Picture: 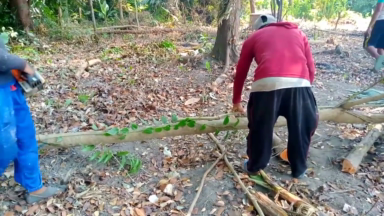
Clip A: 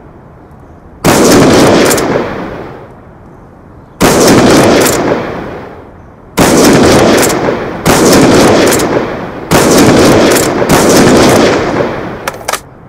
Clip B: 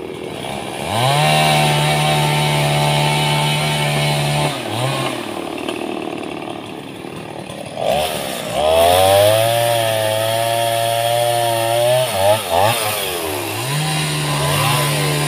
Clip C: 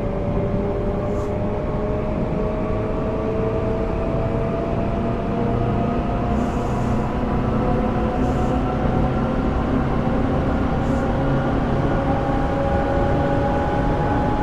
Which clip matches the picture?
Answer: B